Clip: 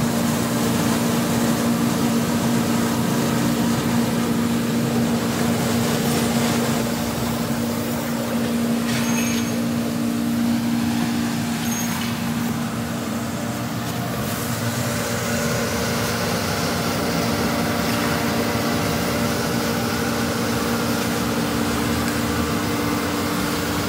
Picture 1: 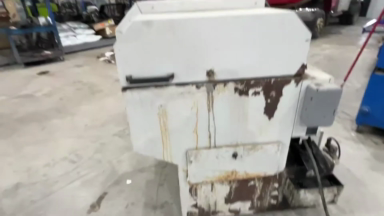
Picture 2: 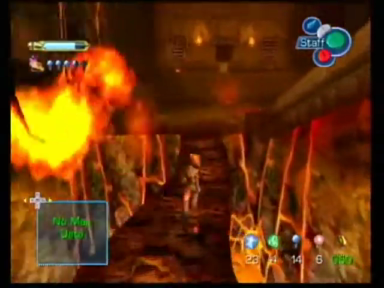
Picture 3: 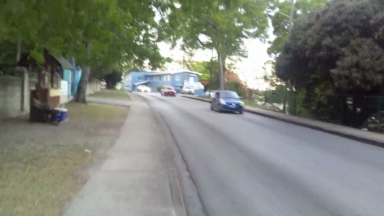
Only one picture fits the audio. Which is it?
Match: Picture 1